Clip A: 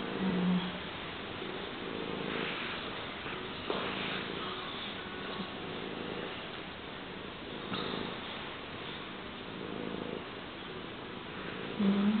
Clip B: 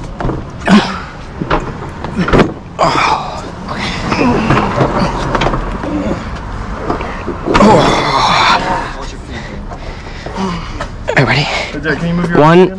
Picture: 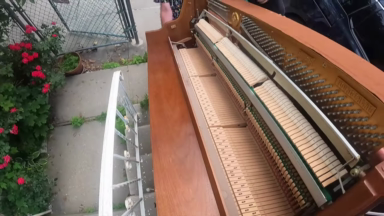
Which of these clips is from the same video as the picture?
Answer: B